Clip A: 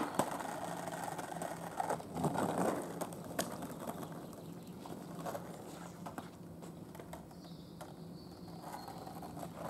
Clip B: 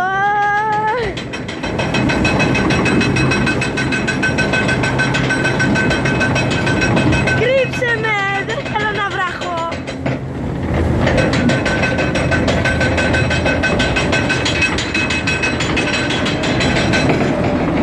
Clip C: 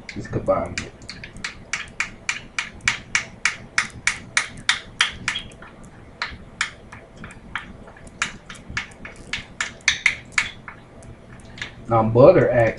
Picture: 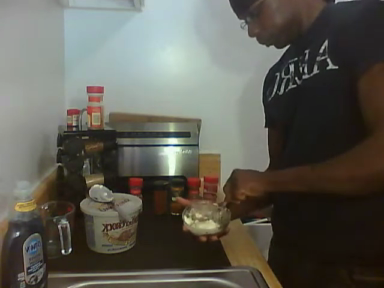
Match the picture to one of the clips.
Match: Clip C